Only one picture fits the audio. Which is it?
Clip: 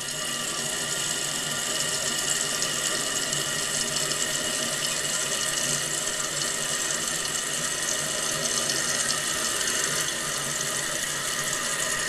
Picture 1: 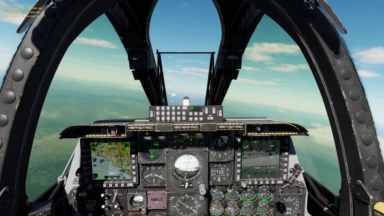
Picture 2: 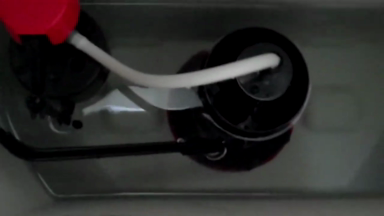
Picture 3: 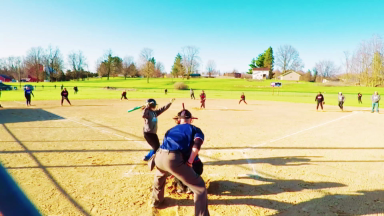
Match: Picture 2